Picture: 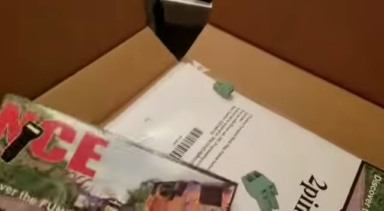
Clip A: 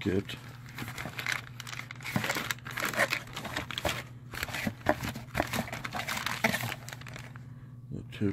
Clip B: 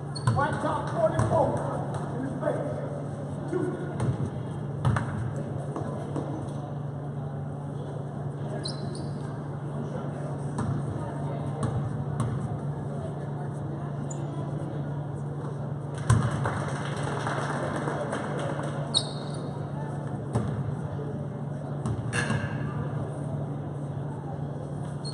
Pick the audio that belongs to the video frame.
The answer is A